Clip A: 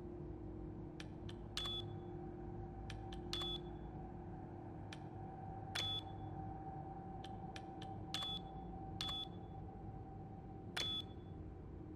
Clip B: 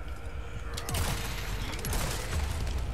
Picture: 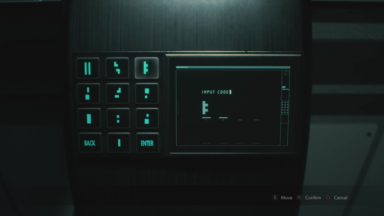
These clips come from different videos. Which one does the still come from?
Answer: A